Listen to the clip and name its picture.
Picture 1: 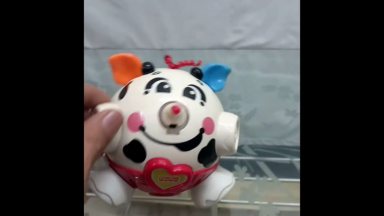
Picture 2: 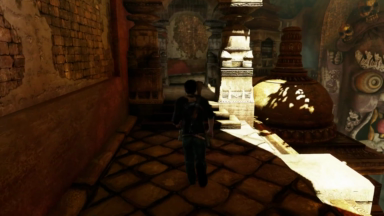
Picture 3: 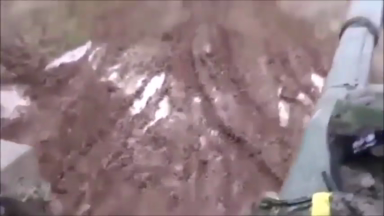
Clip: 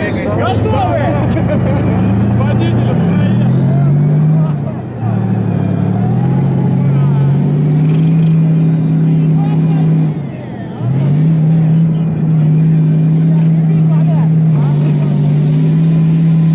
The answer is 3